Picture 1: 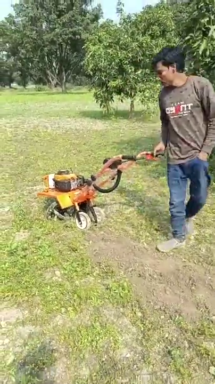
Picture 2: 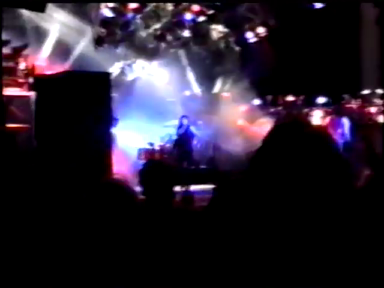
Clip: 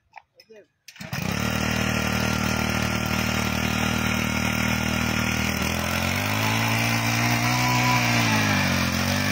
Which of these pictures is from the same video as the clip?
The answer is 1